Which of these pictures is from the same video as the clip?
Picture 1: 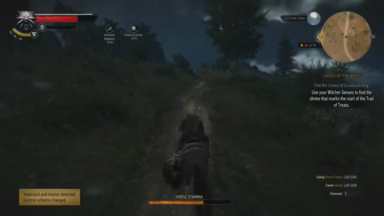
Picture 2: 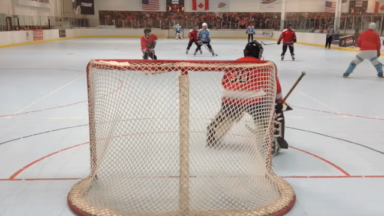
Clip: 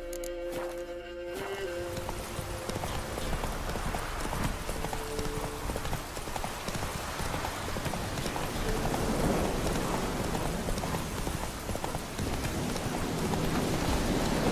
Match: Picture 1